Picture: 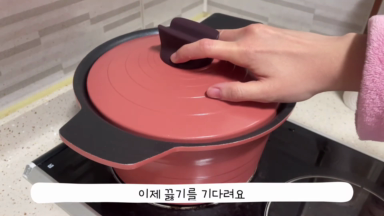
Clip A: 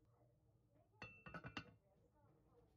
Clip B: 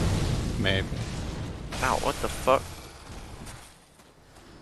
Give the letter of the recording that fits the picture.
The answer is A